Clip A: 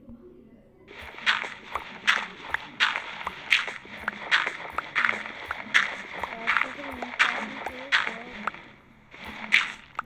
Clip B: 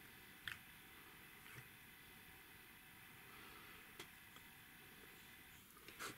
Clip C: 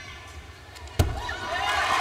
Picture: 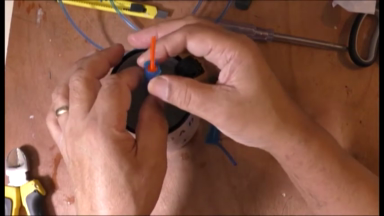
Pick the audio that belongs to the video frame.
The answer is B